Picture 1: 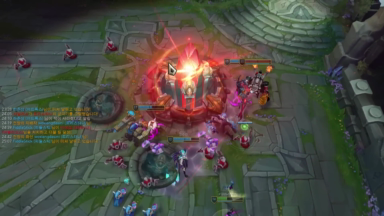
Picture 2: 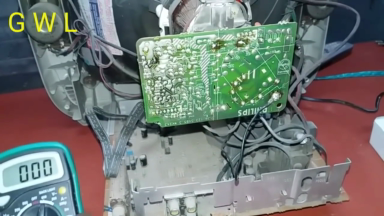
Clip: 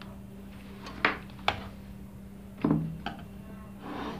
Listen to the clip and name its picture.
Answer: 2